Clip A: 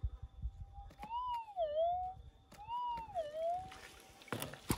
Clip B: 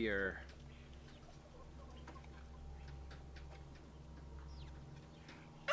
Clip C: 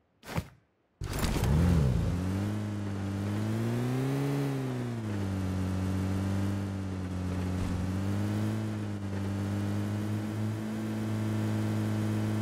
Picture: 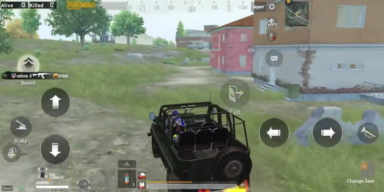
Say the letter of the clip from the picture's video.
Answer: C